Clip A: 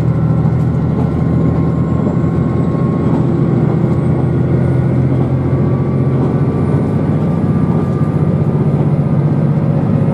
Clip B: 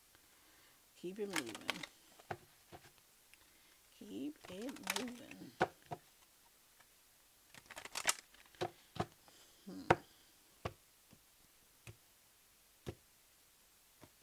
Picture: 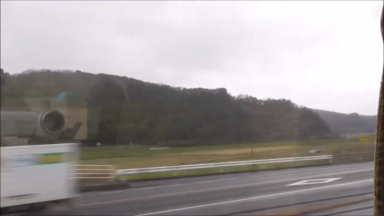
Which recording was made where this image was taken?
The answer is A